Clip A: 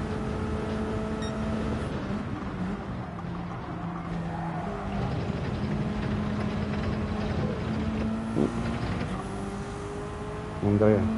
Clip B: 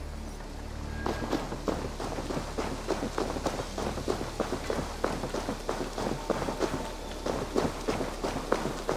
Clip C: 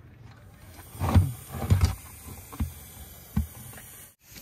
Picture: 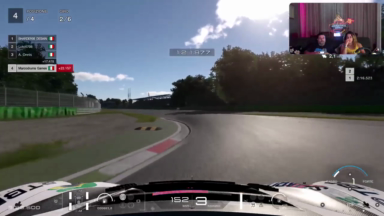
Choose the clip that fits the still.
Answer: A